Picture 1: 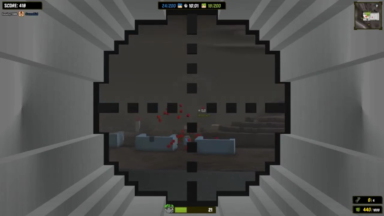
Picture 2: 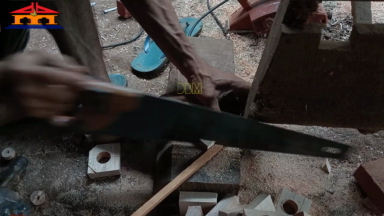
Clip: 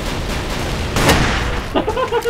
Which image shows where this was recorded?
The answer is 1